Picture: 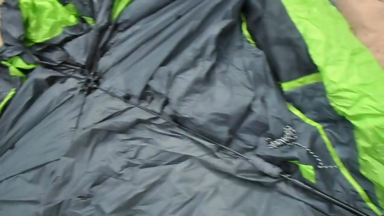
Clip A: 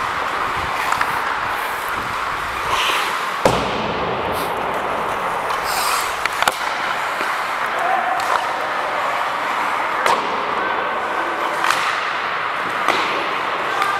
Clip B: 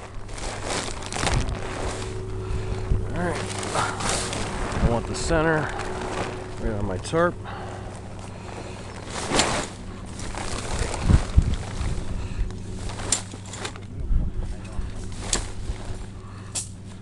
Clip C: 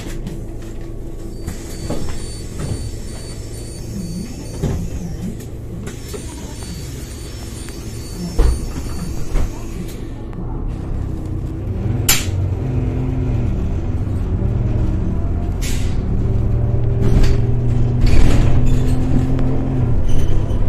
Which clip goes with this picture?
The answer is B